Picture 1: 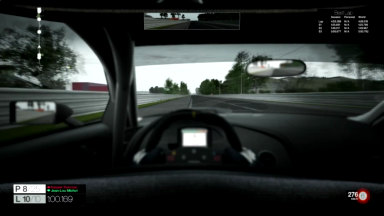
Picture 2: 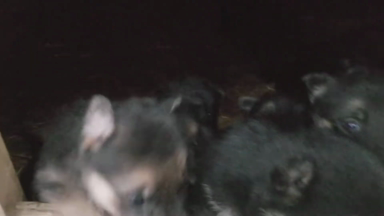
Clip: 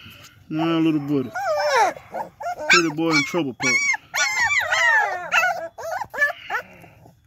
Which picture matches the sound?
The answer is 2